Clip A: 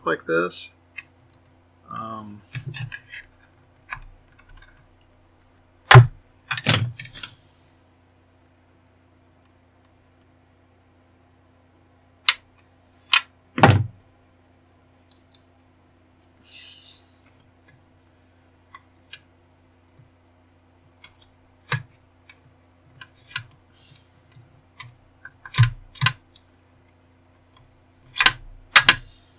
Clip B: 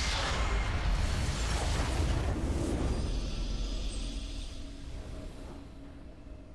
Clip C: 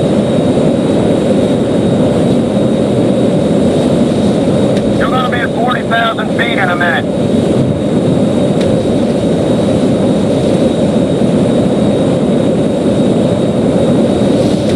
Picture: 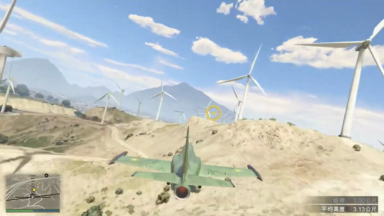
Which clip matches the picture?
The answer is C